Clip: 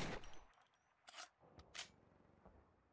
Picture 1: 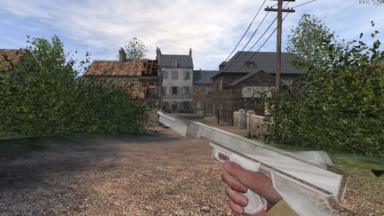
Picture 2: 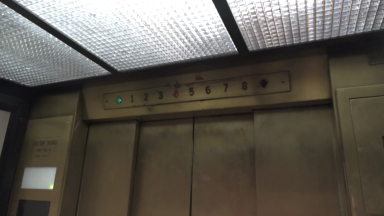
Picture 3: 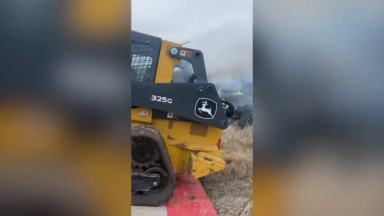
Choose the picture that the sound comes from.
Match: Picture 1